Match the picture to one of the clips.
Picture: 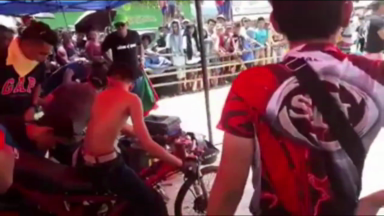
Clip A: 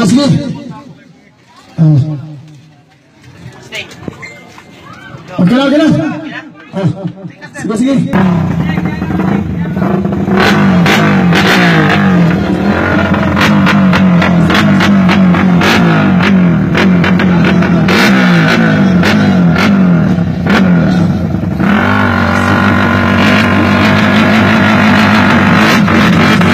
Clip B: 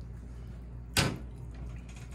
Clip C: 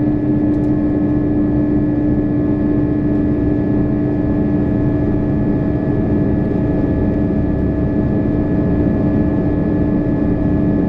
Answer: A